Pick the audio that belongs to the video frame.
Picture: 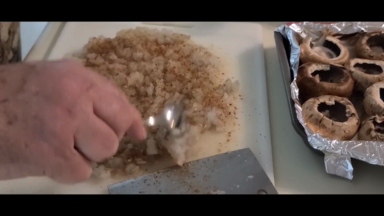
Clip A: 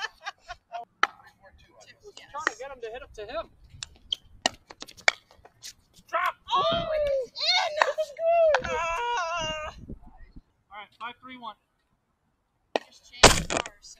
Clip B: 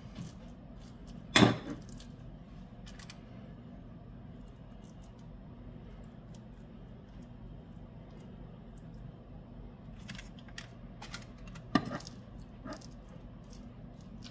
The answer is B